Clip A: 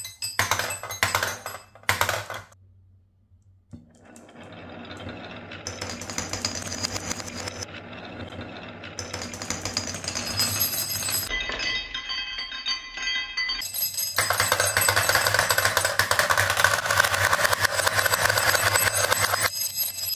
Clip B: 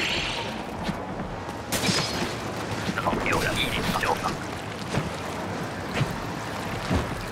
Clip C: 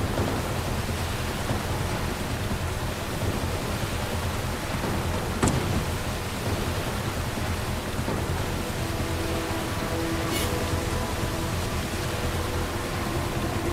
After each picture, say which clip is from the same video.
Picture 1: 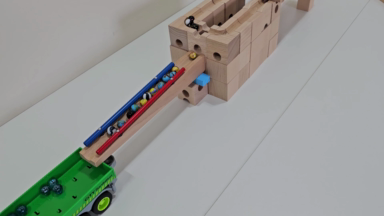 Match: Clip A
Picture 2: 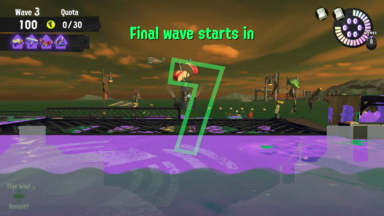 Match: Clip B